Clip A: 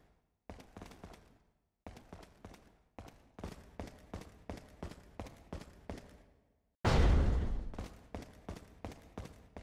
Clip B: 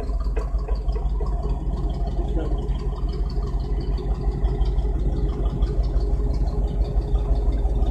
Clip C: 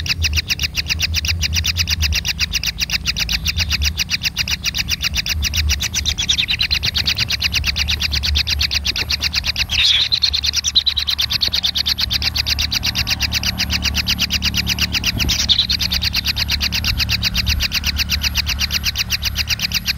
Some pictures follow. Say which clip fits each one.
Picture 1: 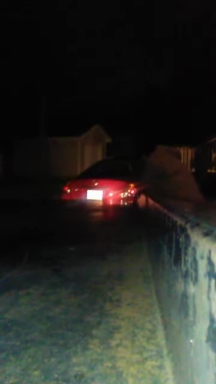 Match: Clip B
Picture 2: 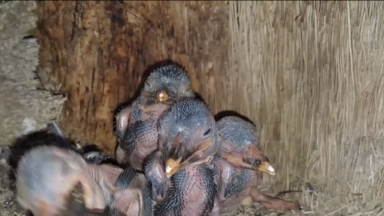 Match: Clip C